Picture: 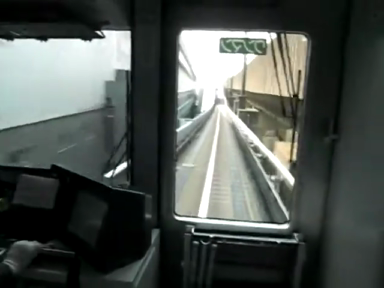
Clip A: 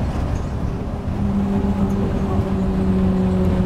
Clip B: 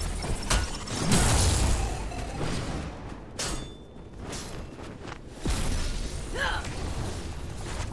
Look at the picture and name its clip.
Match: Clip A